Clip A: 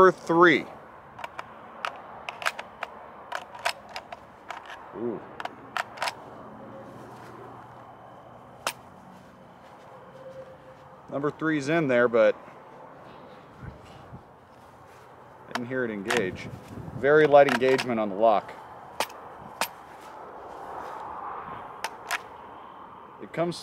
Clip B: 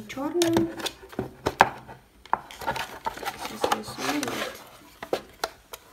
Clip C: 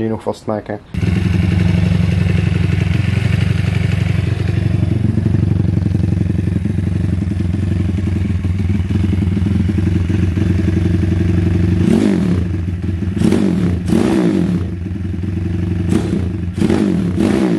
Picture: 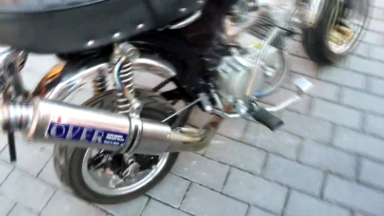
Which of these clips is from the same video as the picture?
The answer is C